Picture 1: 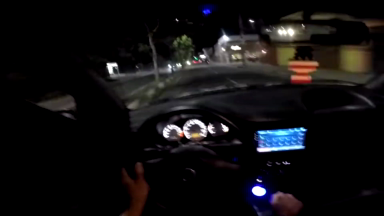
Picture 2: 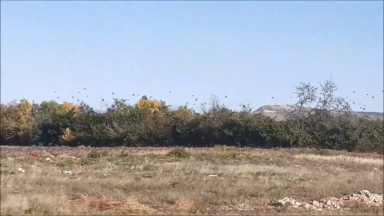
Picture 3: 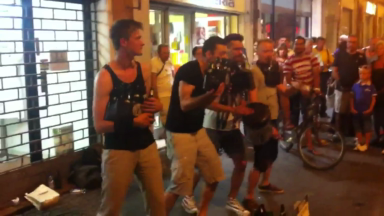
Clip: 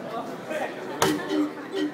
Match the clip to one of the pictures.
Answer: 3